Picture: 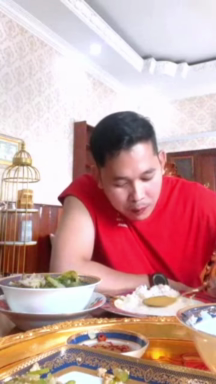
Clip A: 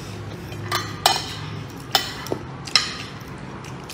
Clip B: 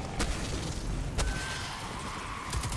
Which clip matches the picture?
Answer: A